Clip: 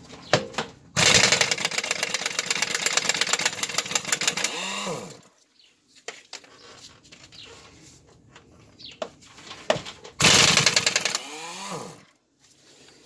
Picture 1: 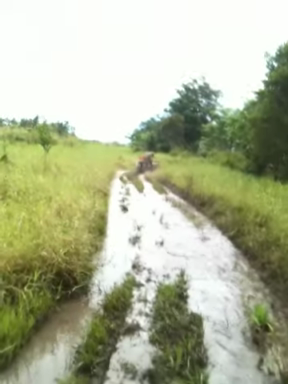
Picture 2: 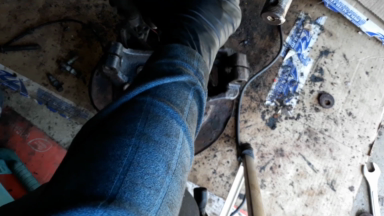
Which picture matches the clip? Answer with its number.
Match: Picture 2